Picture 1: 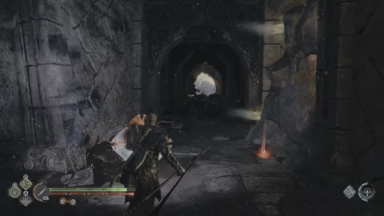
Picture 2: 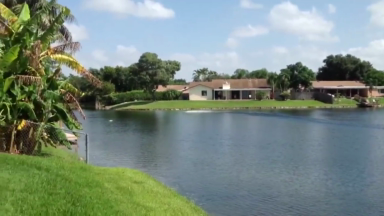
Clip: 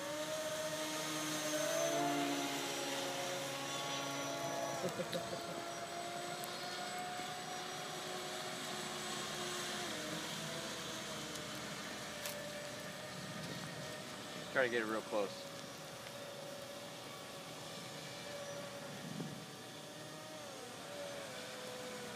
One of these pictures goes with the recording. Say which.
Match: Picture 2